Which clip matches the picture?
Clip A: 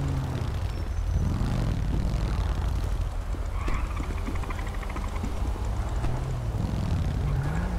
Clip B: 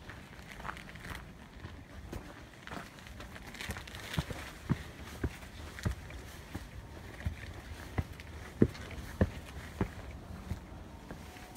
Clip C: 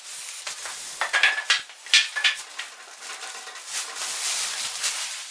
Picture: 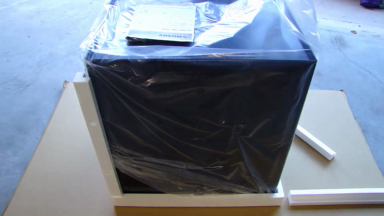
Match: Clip C